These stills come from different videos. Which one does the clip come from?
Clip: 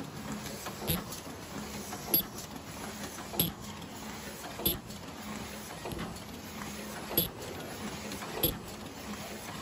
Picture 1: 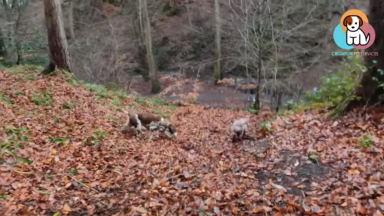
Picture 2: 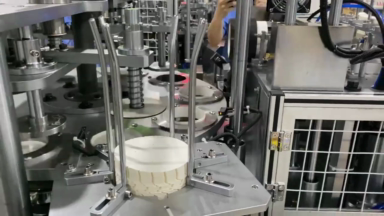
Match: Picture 2